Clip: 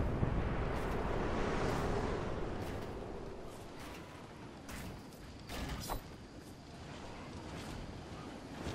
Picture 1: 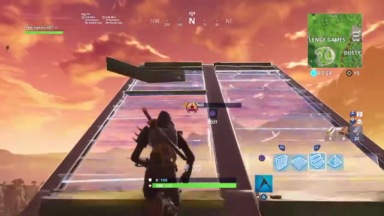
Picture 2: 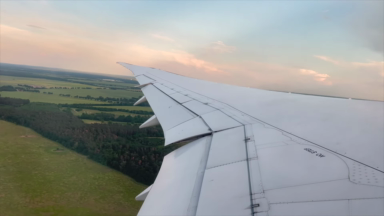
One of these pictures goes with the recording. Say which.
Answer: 1